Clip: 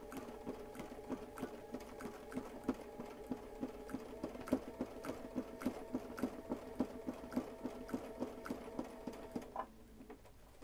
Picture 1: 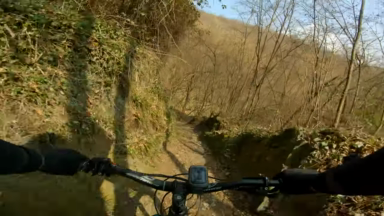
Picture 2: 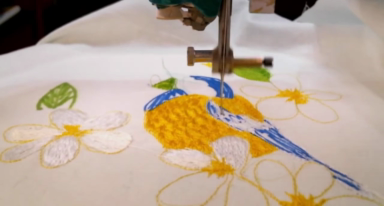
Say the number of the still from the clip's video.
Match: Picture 2